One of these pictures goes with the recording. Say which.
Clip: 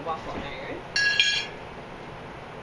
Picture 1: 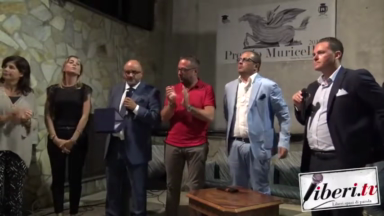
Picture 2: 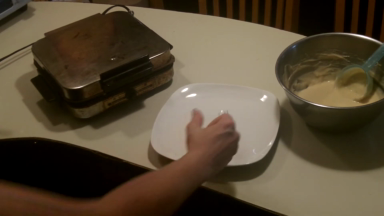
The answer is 2